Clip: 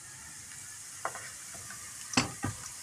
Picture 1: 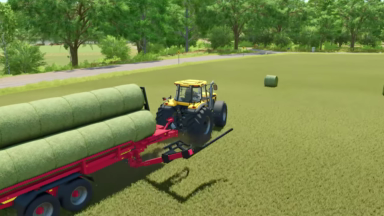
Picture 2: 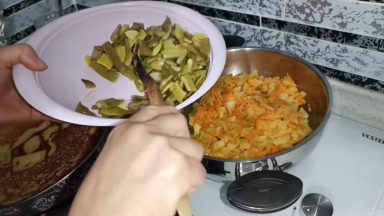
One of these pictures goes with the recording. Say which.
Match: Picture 2